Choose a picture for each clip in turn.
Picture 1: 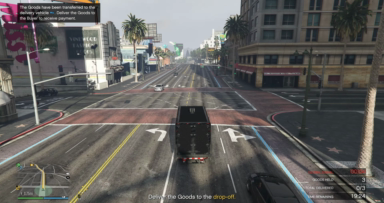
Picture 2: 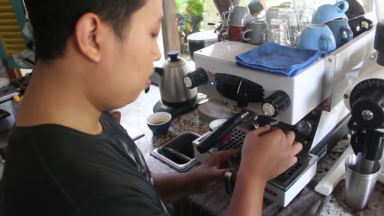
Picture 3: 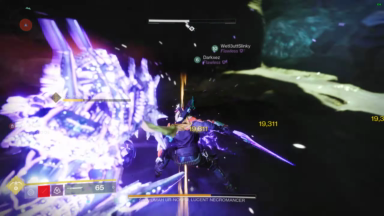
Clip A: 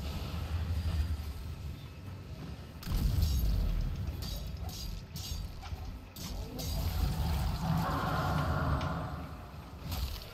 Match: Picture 3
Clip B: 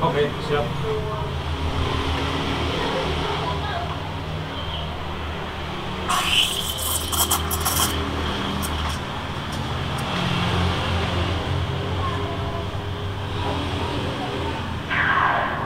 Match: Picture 2